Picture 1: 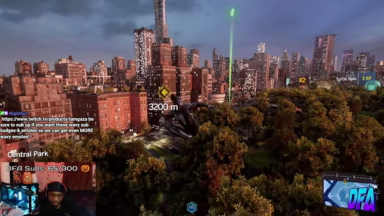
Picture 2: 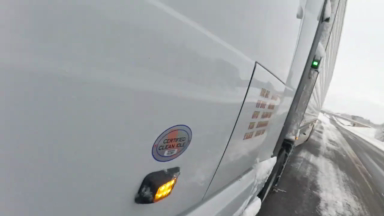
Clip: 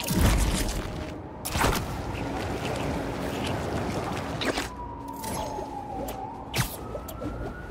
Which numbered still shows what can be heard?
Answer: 1